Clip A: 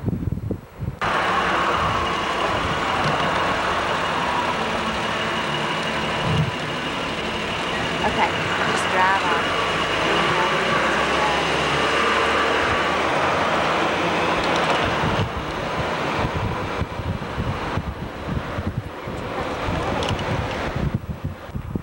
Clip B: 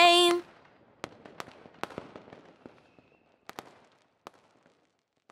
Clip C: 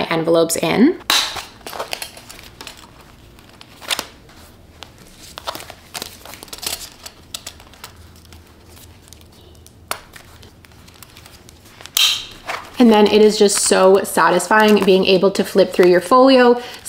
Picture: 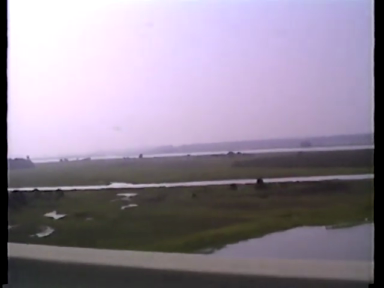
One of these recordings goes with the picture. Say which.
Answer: A